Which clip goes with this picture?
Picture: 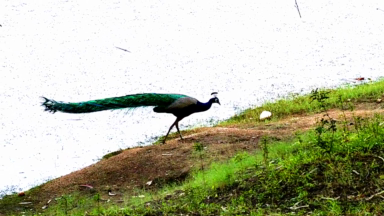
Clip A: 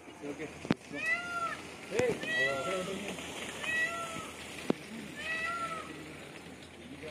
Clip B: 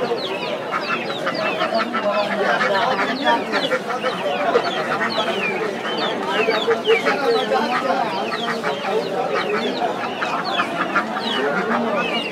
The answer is A